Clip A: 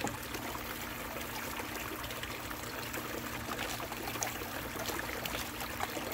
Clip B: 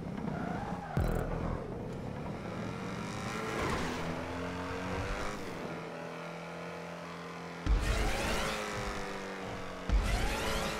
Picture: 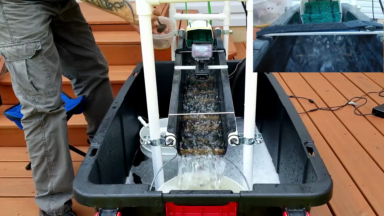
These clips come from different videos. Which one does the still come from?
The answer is A